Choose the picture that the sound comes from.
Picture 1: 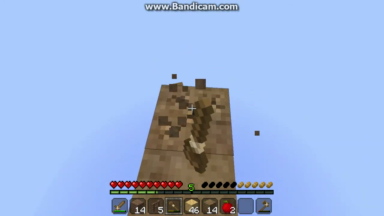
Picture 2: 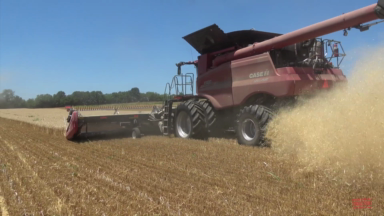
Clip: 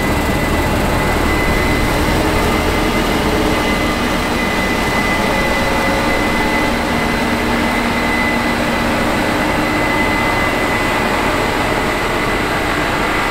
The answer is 2